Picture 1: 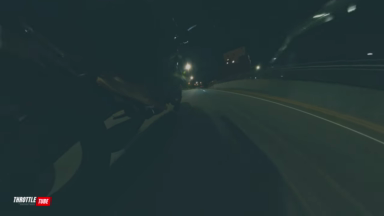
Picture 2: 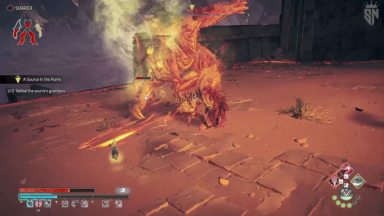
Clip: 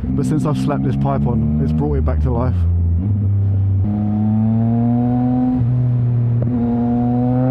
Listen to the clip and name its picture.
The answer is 1